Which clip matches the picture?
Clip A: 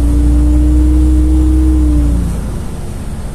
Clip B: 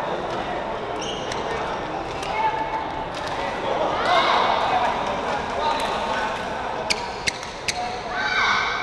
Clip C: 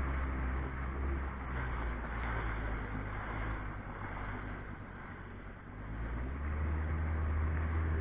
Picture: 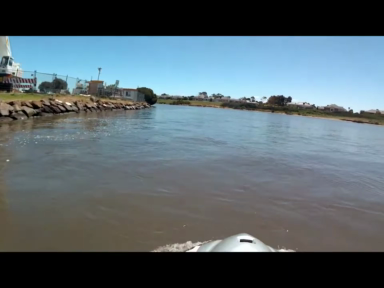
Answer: C